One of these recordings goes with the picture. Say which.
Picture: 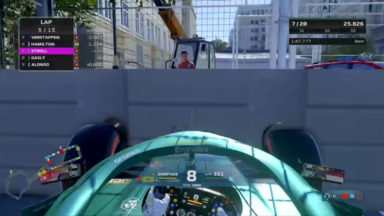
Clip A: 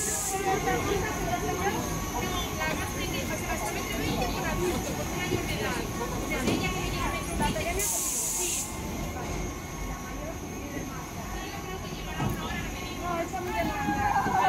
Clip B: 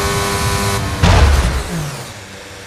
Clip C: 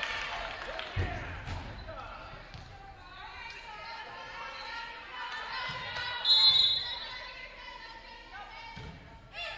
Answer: B